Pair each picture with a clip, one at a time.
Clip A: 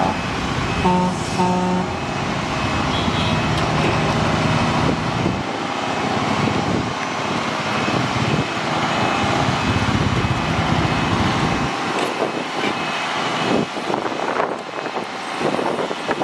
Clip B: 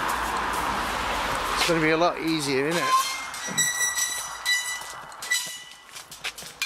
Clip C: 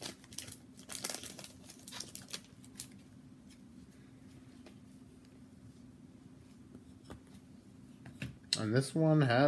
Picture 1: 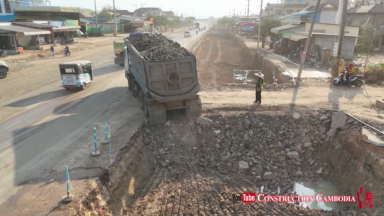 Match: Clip A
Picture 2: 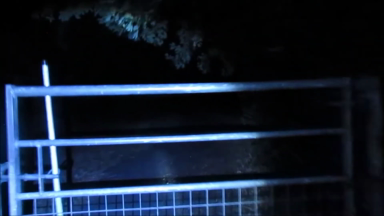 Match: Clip B